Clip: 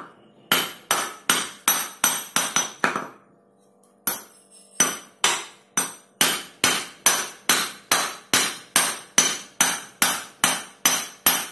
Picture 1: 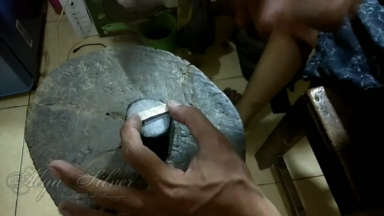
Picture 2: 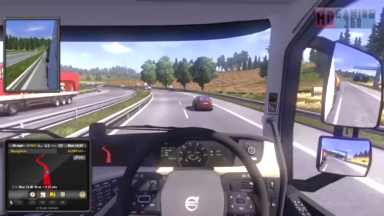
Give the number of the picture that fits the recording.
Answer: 1